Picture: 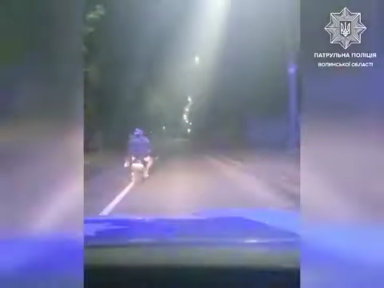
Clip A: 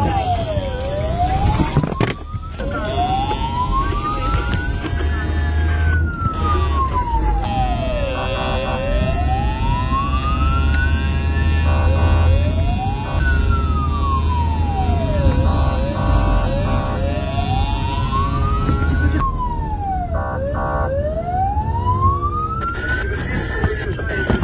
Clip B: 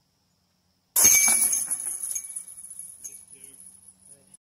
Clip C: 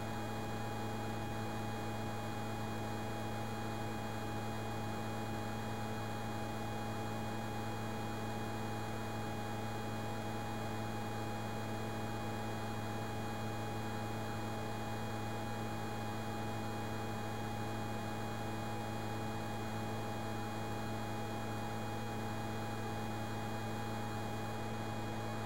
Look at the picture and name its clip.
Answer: A